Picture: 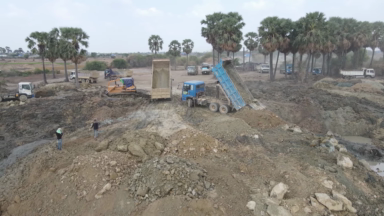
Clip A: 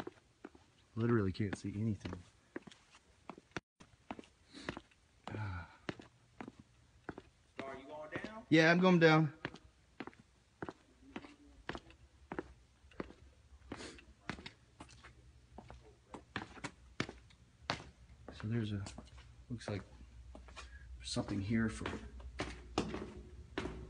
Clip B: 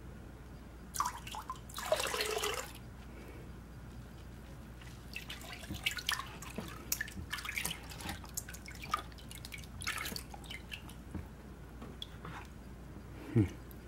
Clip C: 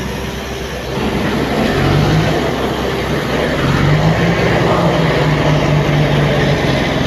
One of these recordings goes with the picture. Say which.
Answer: C